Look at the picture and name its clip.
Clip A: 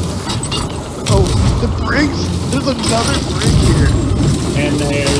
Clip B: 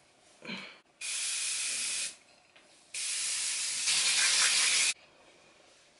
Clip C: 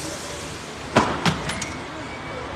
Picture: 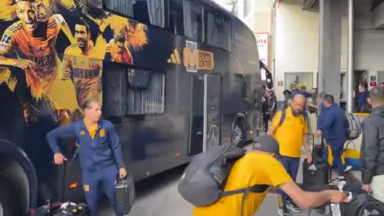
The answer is C